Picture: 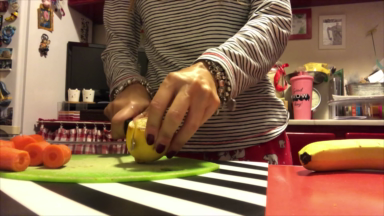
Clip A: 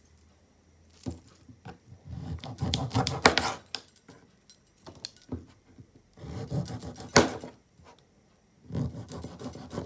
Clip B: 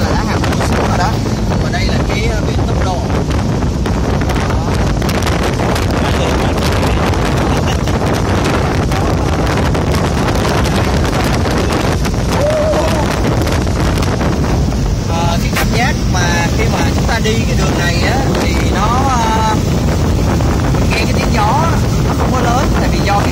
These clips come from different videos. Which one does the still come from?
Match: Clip A